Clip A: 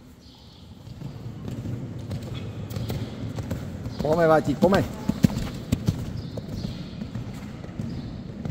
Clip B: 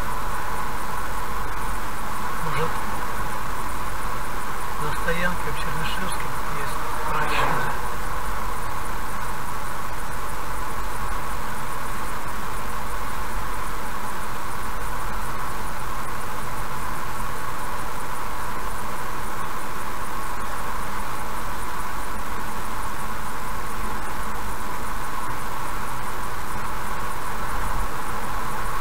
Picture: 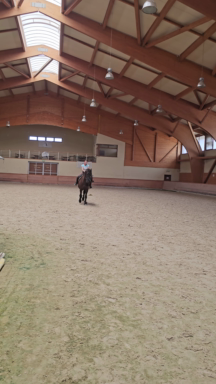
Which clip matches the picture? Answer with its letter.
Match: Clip A